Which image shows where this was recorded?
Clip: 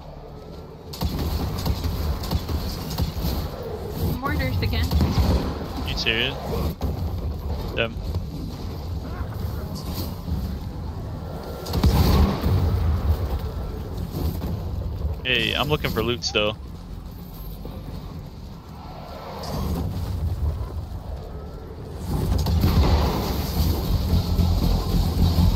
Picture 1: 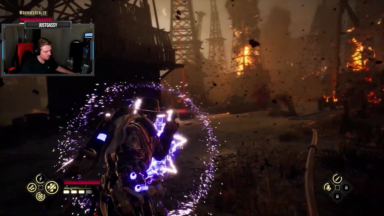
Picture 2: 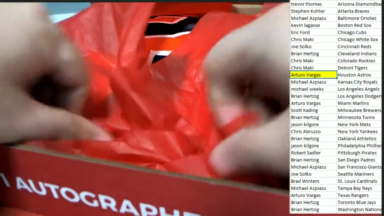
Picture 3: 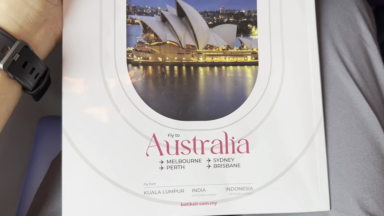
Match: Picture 1